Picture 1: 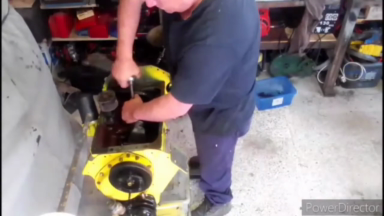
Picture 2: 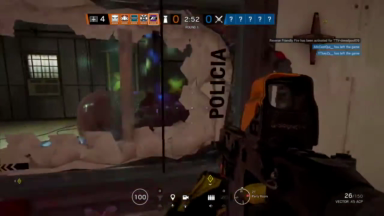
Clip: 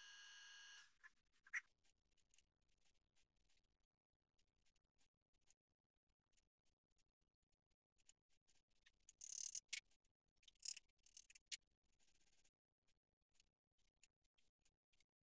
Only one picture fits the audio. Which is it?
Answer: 1